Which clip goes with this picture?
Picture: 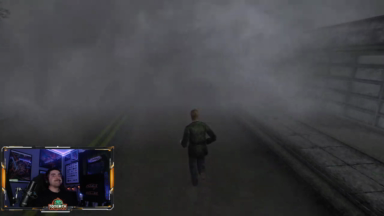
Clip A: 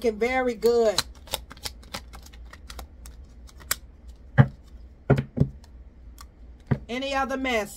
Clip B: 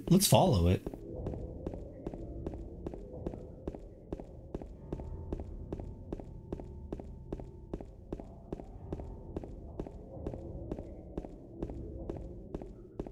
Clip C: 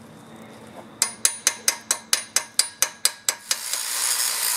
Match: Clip B